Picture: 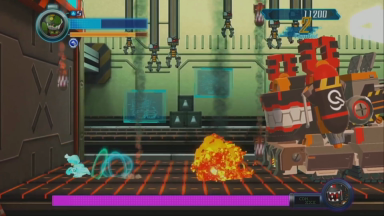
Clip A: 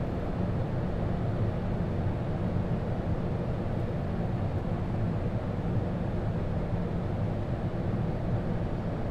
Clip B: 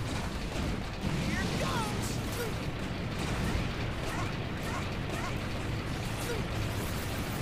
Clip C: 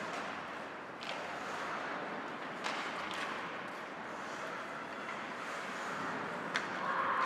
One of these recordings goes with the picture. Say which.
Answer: B